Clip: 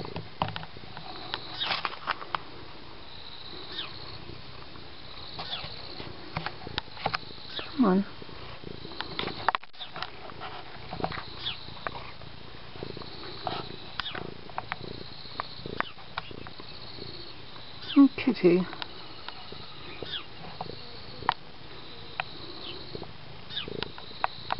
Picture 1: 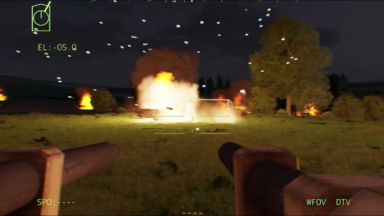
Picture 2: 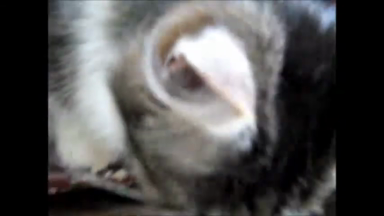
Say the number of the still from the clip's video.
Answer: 2